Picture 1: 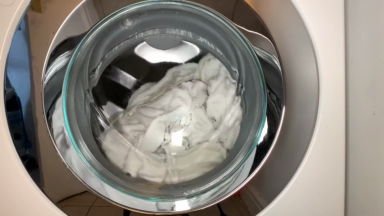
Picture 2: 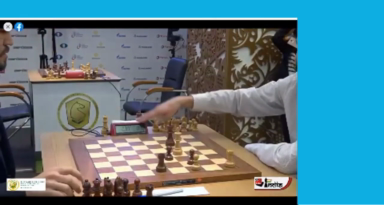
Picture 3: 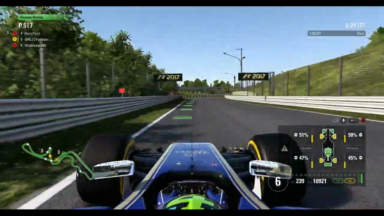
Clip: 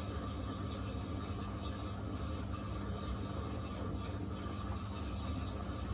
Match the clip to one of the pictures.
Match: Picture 1